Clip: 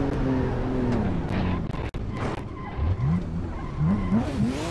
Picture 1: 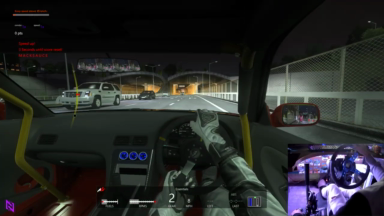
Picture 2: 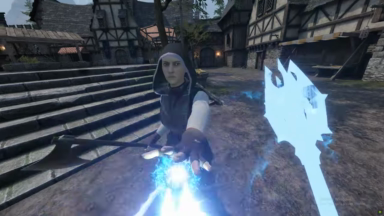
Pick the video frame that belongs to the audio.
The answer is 1